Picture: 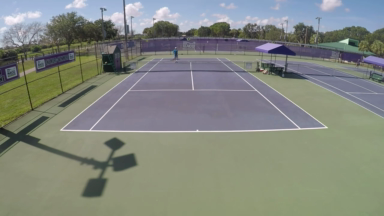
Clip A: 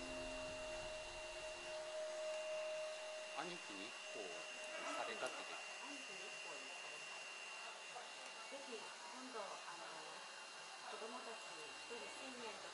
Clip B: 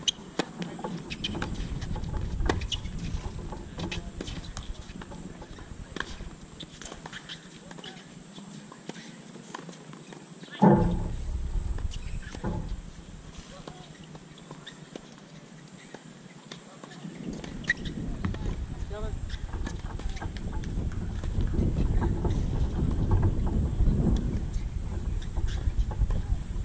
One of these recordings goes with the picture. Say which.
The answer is B